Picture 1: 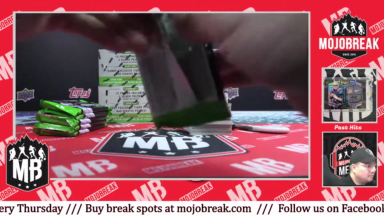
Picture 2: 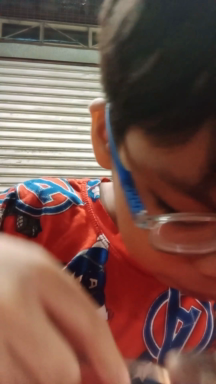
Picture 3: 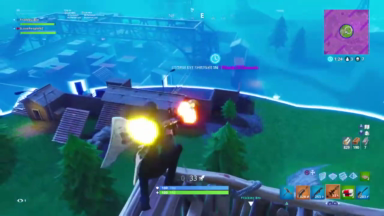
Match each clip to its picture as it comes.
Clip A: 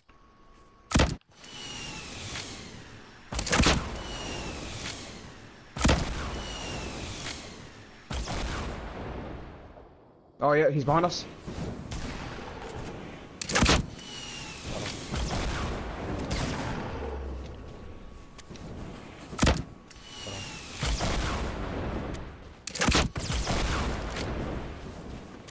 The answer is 3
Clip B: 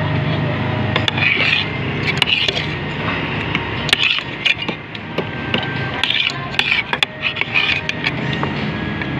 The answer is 2